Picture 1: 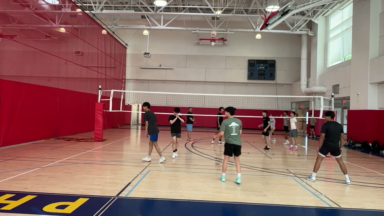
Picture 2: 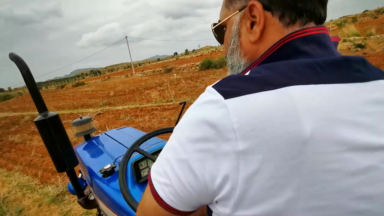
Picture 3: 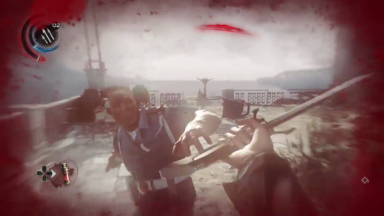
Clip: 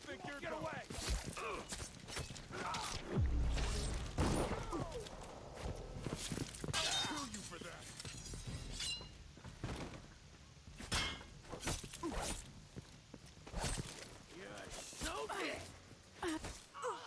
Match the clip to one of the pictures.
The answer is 3